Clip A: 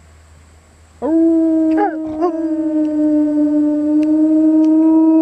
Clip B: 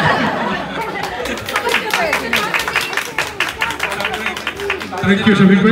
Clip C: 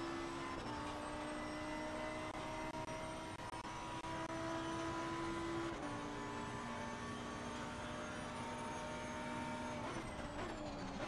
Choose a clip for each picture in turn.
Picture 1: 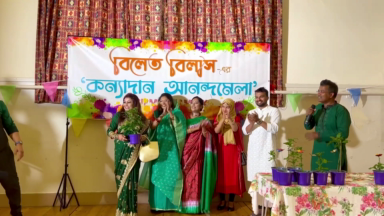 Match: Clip B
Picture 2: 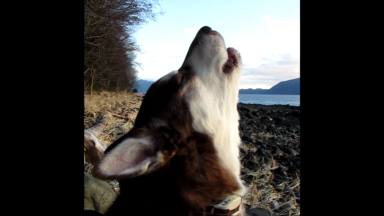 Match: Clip A